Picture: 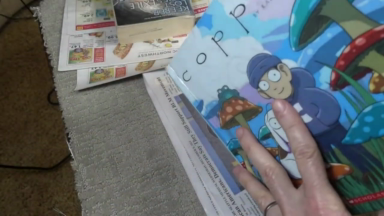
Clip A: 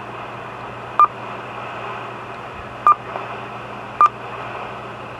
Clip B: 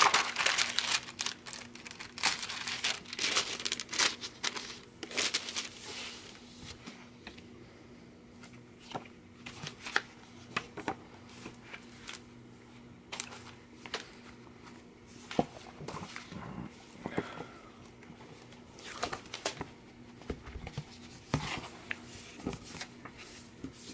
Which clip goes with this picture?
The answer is B